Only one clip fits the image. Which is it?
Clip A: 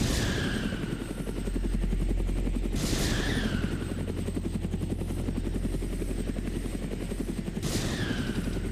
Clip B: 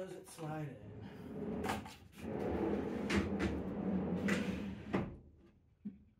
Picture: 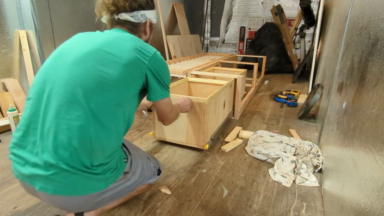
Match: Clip B